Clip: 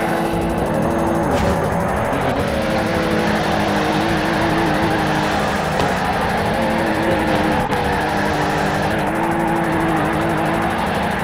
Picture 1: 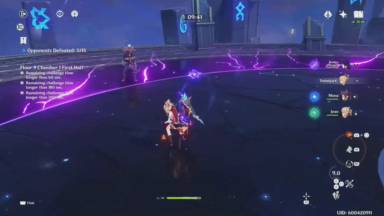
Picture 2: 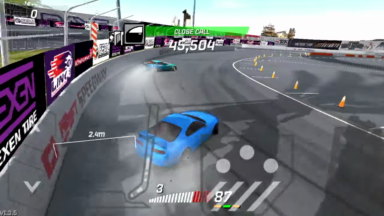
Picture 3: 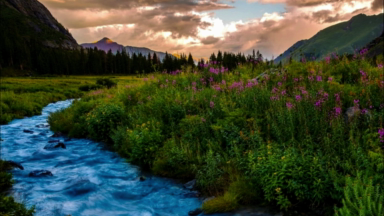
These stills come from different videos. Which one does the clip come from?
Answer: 2